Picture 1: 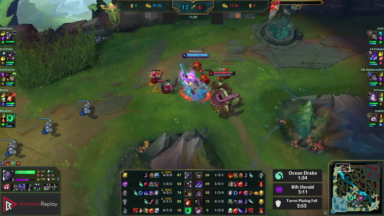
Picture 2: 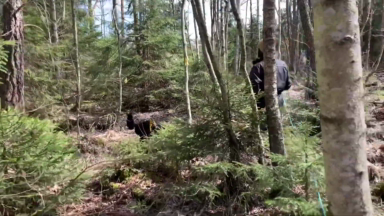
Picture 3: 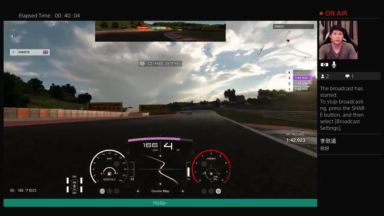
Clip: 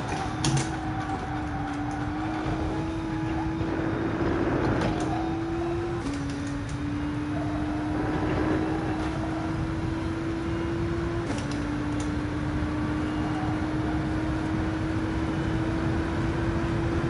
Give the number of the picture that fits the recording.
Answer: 3